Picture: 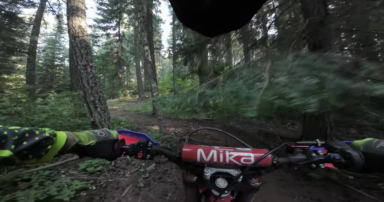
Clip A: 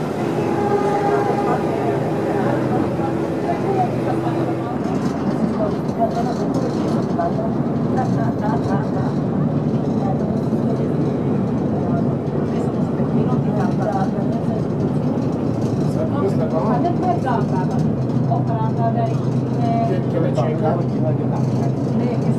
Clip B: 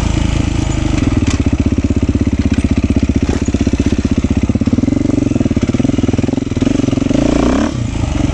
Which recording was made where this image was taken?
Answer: B